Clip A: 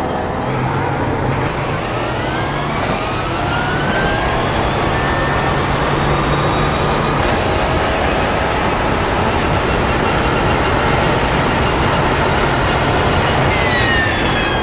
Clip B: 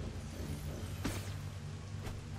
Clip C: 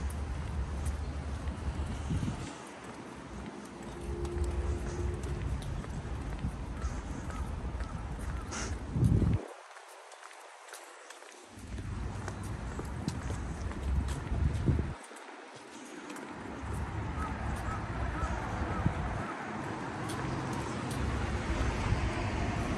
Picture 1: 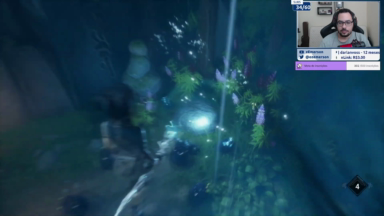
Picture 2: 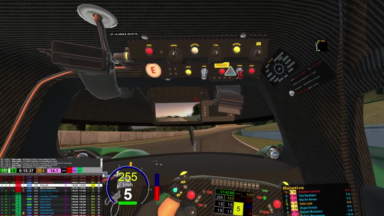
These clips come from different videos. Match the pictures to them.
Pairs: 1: B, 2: A